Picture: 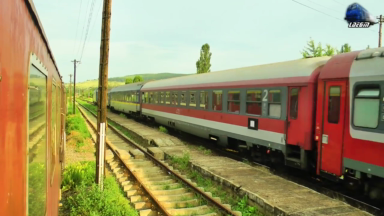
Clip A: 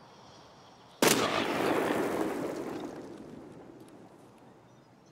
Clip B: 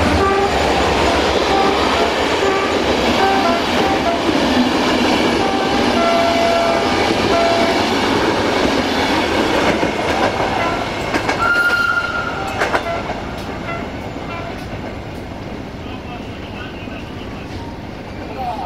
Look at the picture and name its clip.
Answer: B